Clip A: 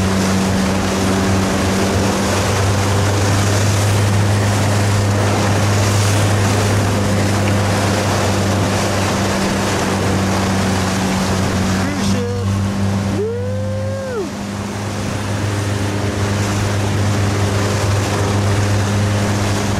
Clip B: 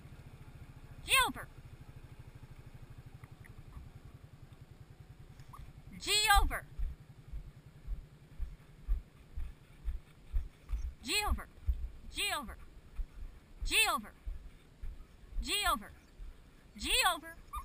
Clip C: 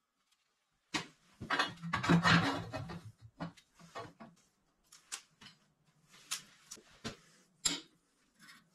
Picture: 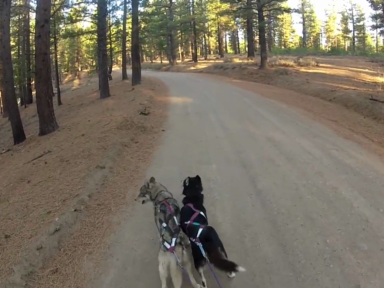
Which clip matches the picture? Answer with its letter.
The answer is B